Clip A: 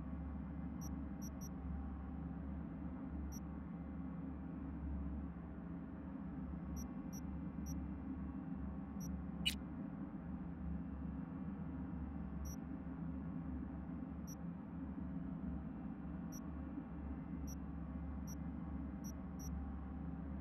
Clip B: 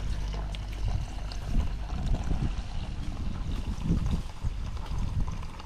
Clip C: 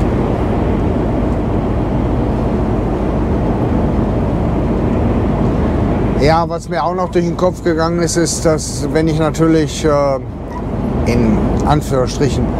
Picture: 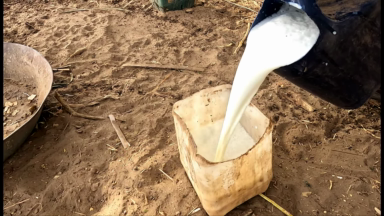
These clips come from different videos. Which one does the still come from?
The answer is B